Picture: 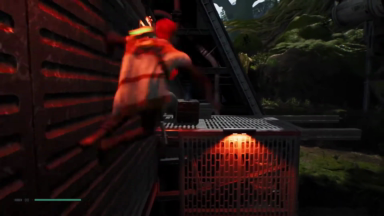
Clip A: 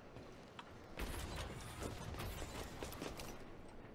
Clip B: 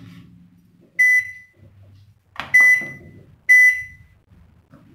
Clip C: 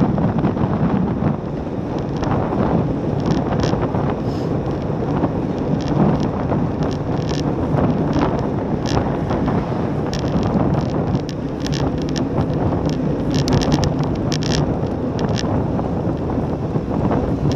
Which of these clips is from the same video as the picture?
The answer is A